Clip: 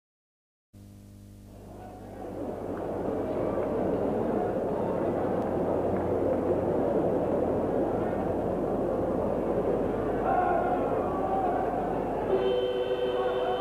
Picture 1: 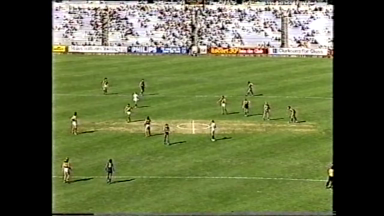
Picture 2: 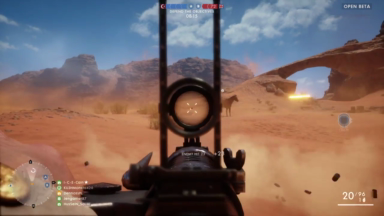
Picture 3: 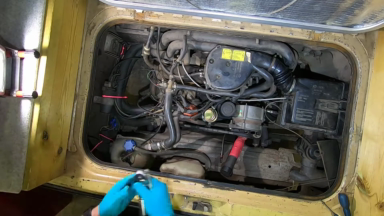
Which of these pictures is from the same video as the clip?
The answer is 1